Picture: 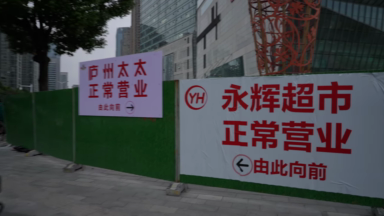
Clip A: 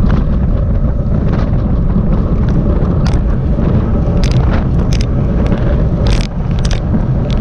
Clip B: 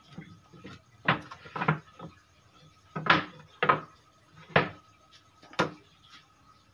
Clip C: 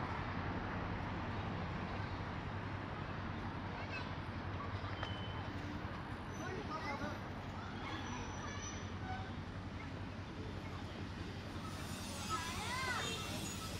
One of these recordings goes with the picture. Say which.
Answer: C